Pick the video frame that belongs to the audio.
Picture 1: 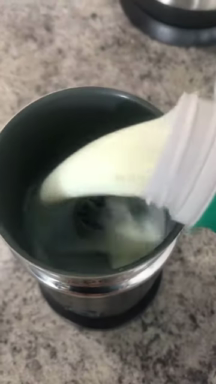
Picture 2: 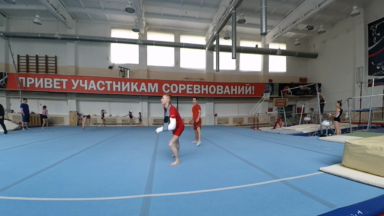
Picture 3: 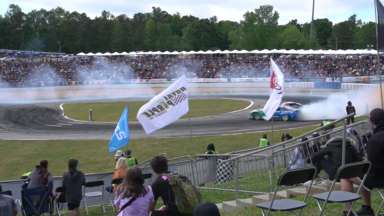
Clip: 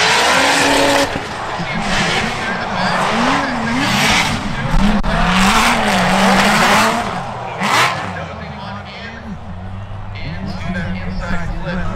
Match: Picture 3